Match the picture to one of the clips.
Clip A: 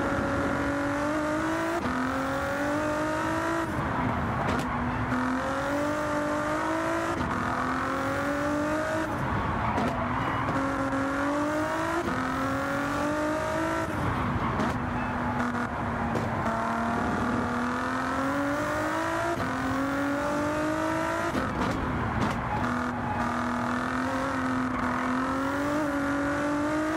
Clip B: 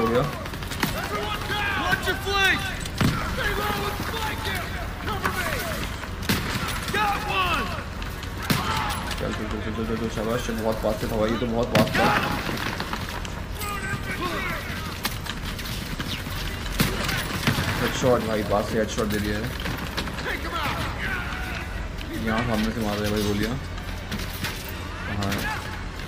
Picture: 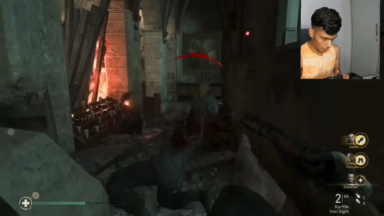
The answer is B